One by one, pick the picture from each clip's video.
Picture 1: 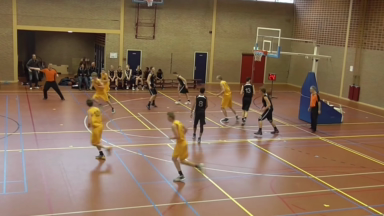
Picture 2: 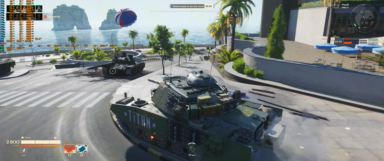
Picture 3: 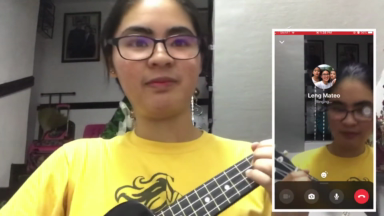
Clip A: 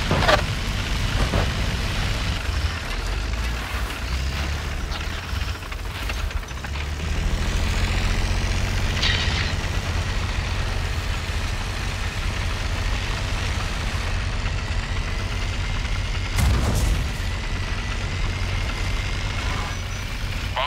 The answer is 2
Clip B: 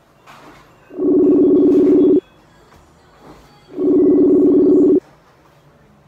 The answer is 3